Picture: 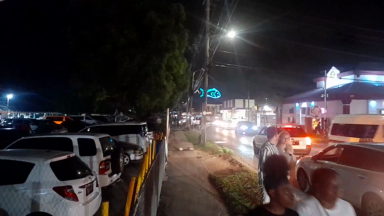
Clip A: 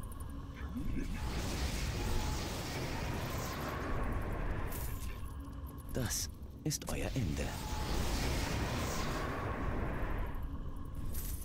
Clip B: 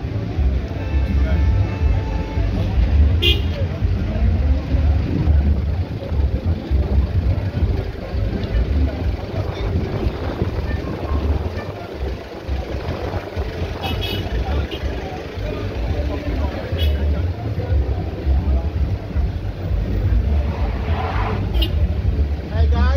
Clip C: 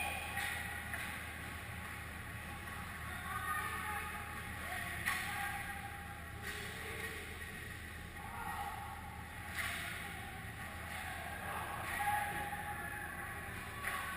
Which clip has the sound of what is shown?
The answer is B